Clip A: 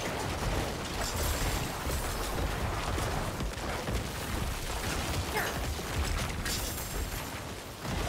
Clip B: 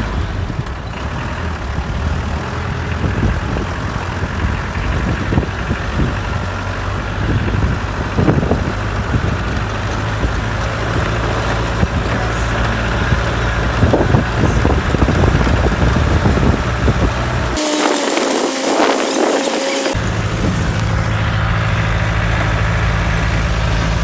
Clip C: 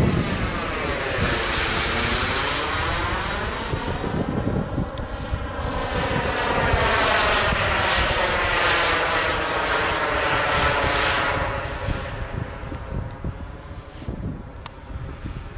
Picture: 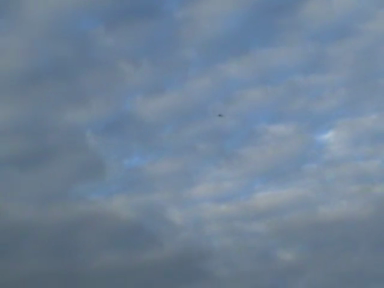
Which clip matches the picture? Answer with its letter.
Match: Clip C